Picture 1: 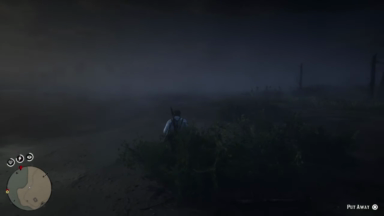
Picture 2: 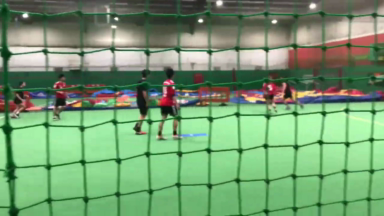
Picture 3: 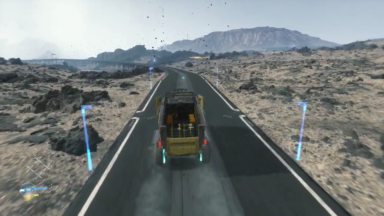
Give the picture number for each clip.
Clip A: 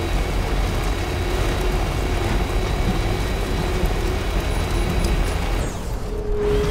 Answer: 3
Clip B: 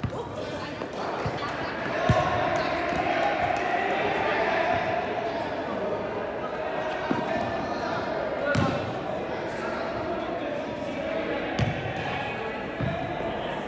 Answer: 2